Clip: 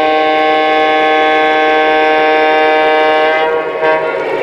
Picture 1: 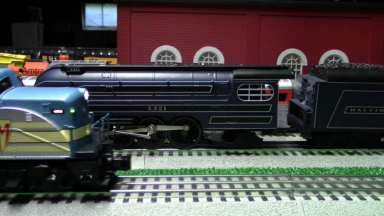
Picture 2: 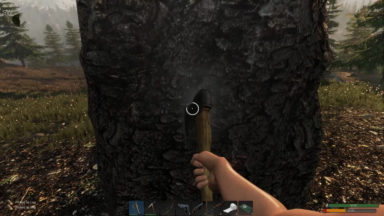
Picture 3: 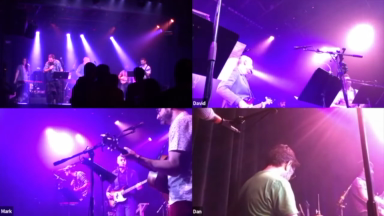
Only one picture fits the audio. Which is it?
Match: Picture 1